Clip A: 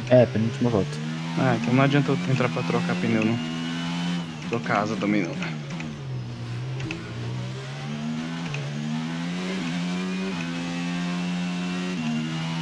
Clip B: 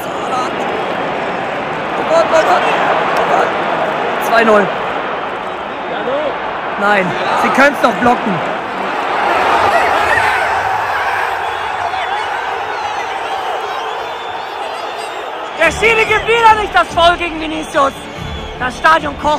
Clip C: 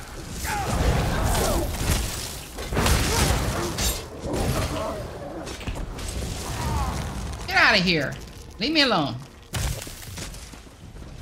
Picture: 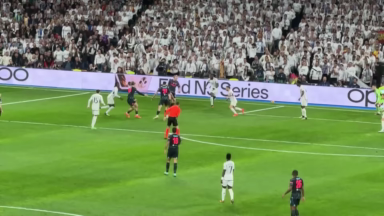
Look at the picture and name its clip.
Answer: B